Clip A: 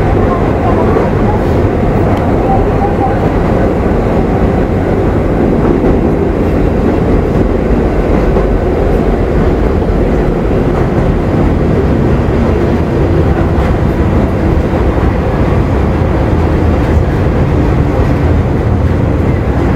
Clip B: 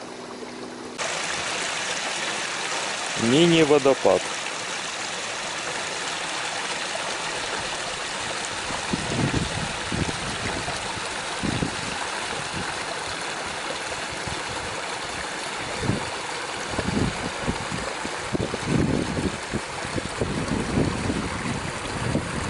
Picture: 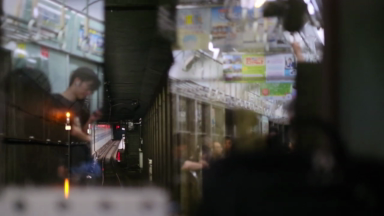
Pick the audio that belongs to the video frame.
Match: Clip A